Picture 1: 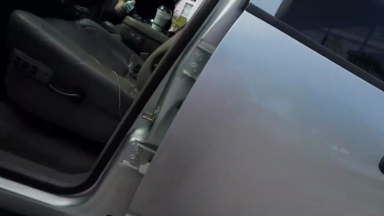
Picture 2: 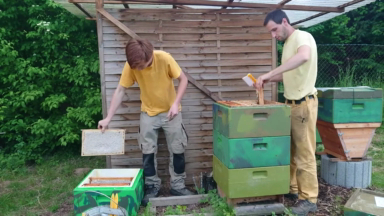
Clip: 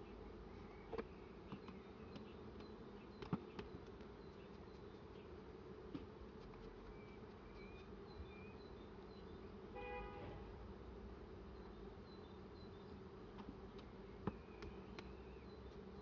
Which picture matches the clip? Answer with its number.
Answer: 2